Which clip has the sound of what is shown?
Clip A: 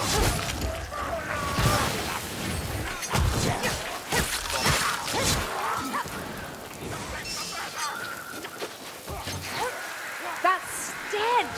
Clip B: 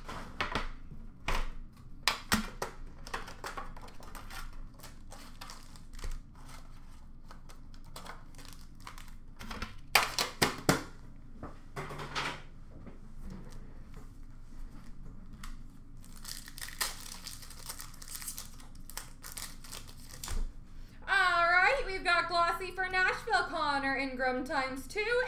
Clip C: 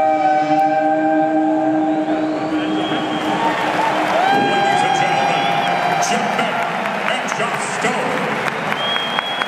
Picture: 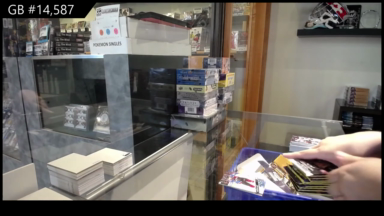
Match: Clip B